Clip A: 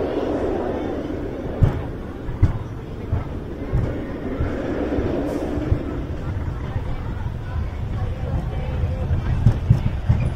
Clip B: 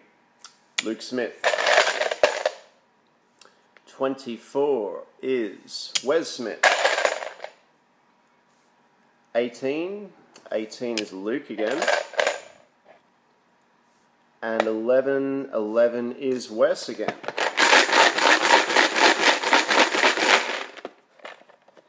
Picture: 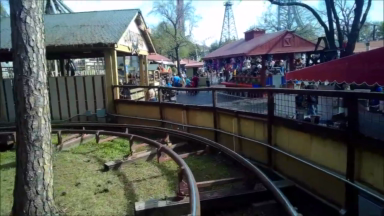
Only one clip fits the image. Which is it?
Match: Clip A